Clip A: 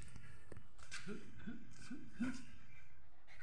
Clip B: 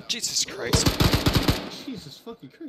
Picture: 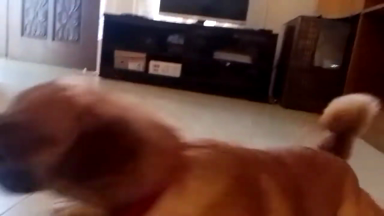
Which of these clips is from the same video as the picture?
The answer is A